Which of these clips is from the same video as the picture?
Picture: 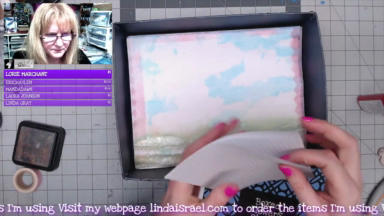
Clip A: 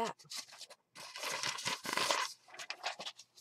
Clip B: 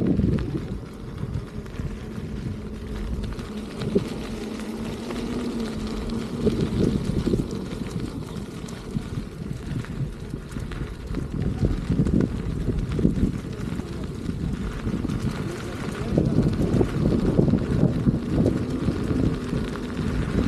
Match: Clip A